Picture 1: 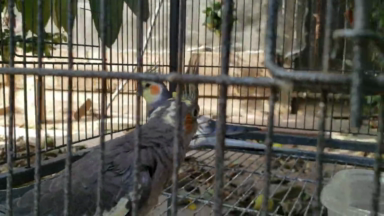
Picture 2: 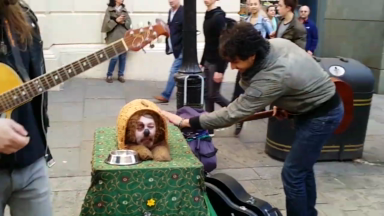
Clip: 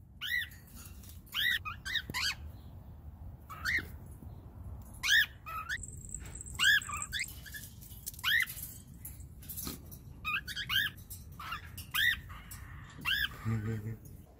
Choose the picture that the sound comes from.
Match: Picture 1